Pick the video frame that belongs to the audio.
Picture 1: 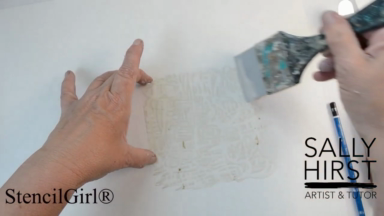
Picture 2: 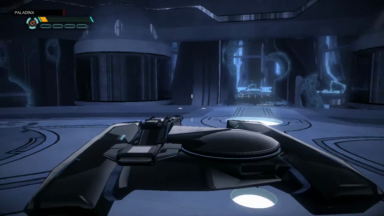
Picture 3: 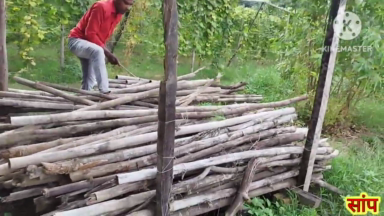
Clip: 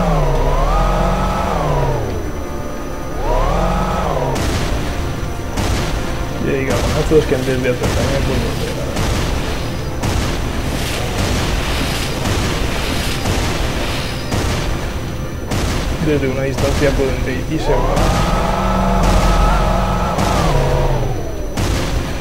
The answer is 2